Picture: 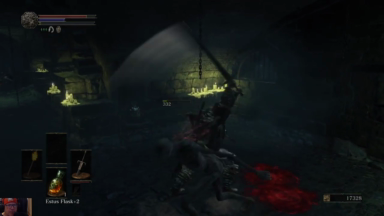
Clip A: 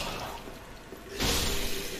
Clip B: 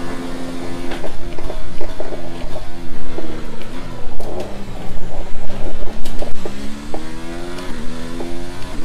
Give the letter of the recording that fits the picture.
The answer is A